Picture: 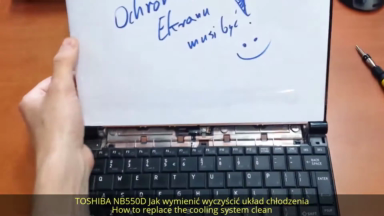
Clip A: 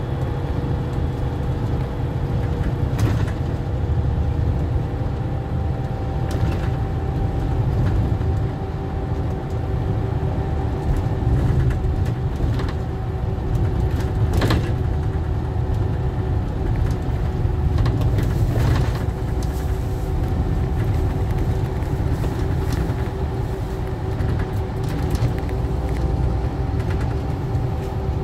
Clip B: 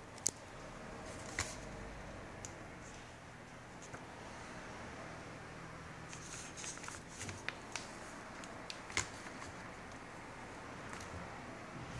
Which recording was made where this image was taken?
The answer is B